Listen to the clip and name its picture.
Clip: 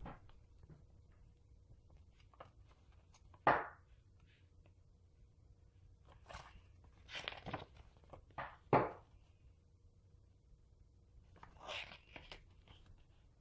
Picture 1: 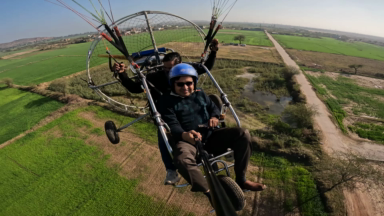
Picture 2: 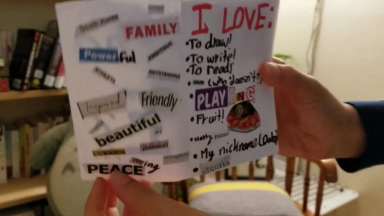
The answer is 2